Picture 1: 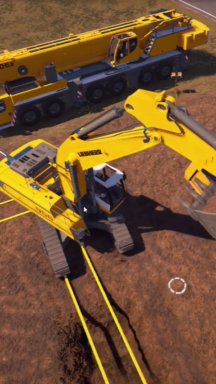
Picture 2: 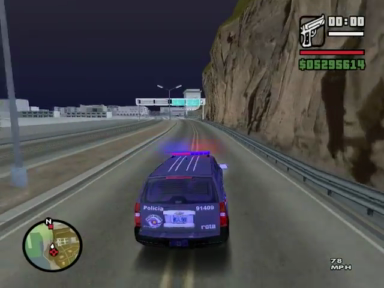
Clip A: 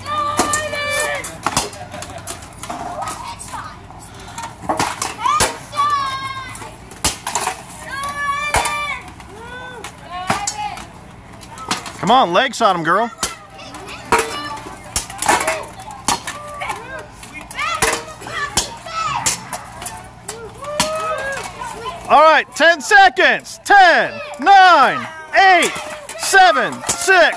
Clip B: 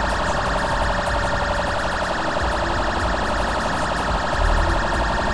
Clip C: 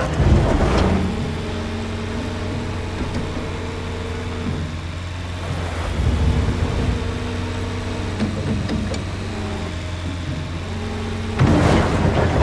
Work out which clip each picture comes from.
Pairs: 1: C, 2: B